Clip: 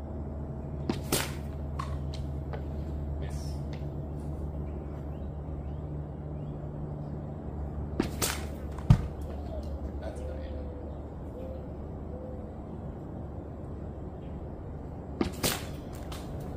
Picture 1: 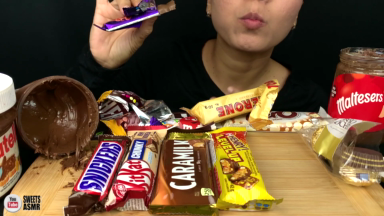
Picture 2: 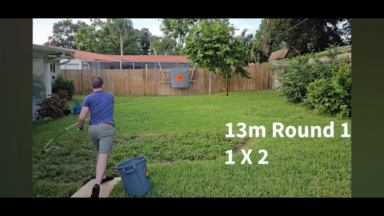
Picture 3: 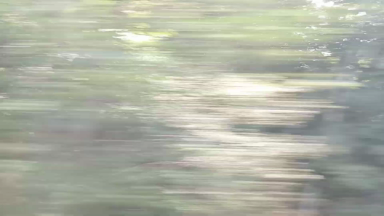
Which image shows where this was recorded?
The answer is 2